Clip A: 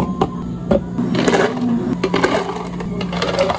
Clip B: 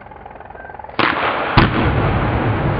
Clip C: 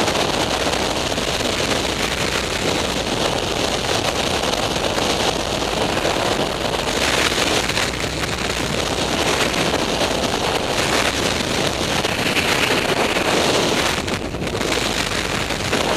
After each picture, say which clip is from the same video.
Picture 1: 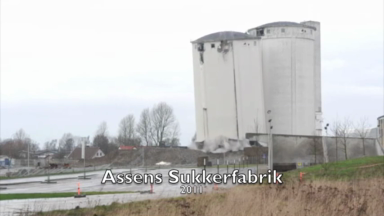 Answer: B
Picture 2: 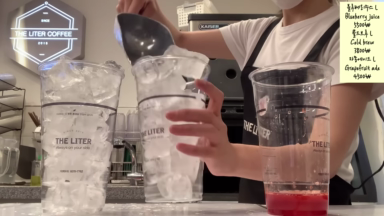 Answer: A